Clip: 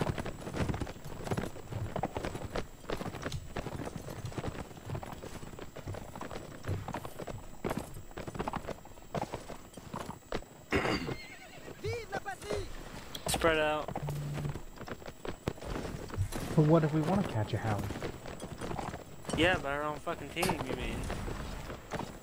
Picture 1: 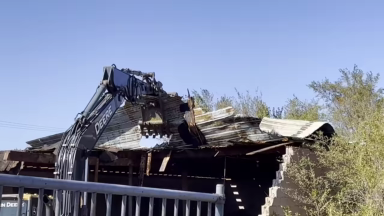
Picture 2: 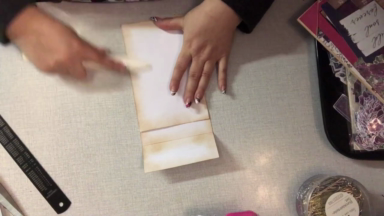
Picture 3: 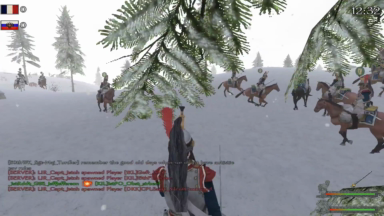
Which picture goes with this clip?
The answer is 3